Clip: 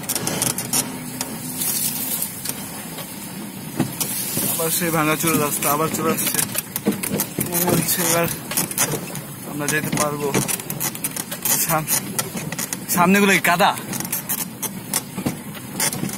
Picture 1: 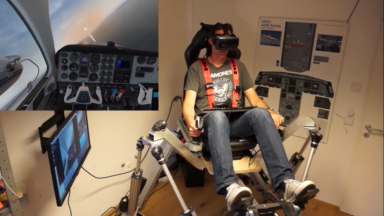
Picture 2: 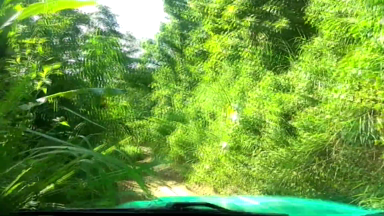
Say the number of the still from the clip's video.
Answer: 2